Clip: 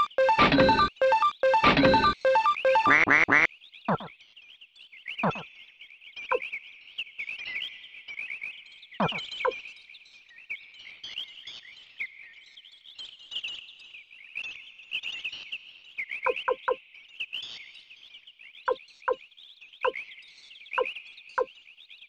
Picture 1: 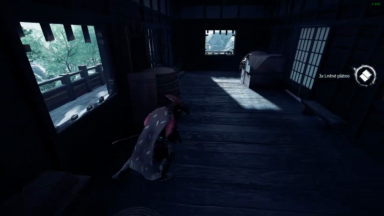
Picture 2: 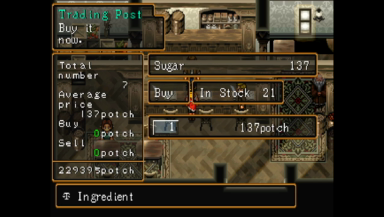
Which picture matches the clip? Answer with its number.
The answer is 2